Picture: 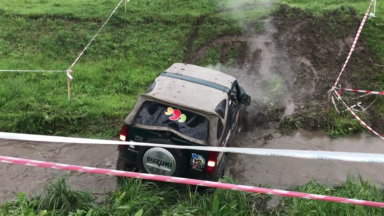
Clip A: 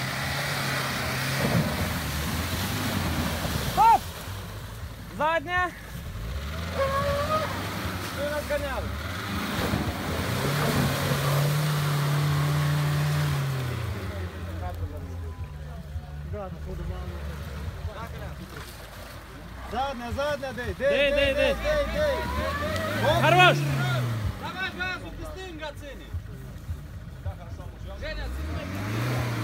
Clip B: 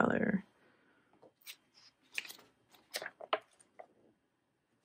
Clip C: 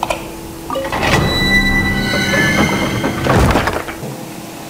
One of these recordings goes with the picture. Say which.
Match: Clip A